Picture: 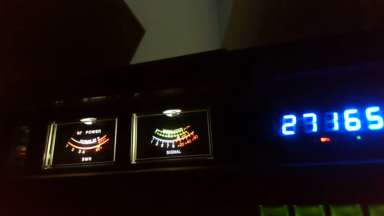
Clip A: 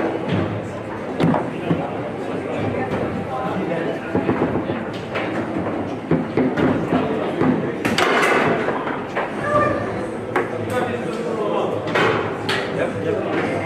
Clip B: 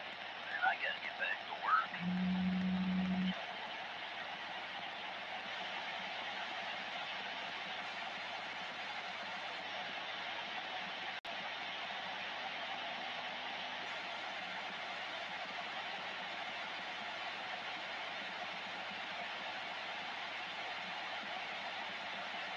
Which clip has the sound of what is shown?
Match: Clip B